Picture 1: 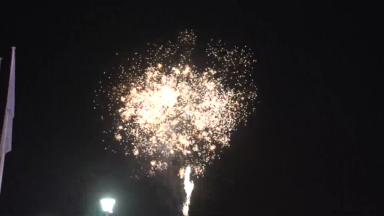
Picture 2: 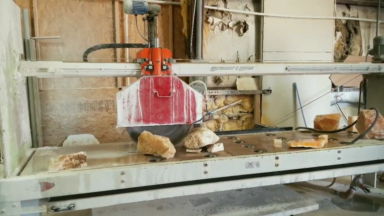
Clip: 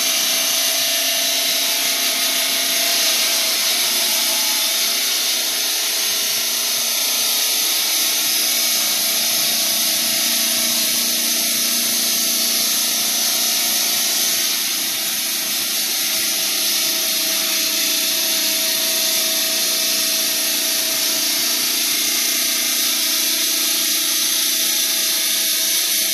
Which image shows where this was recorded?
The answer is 2